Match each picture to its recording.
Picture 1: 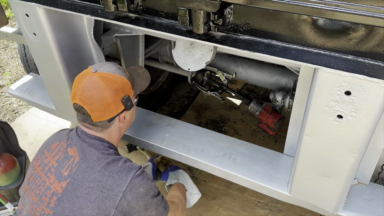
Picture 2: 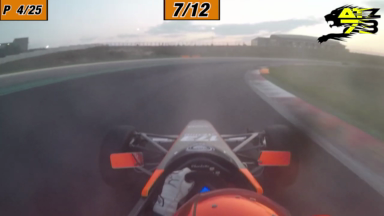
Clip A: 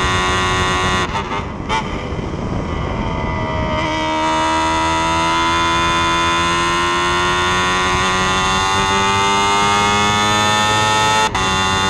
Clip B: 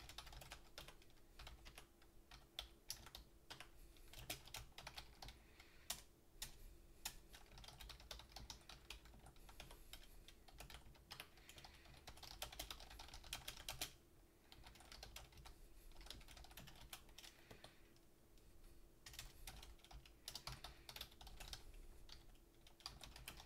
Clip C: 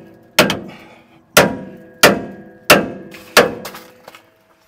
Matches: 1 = C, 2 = A